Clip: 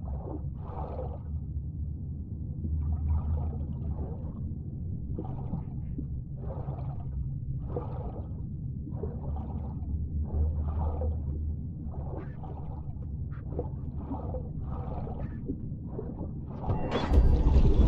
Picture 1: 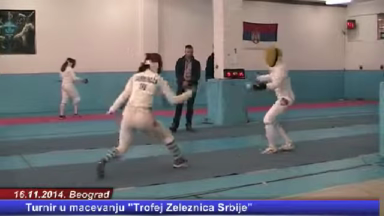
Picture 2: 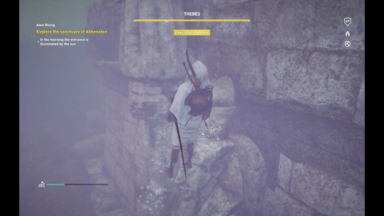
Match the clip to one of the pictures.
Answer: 2